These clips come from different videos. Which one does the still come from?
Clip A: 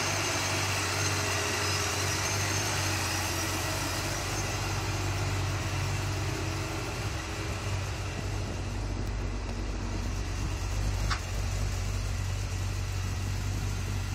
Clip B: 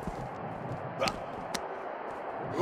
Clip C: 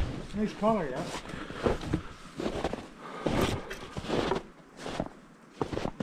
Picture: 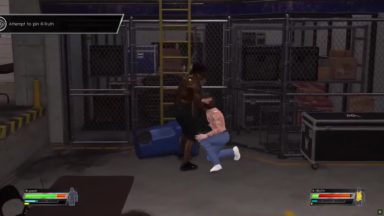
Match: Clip B